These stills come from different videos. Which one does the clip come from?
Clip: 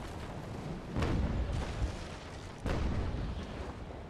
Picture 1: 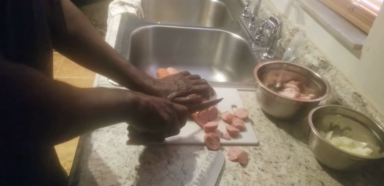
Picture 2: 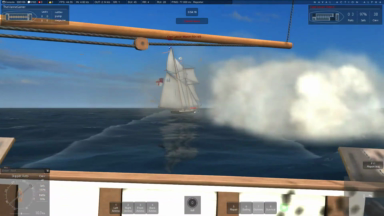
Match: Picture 2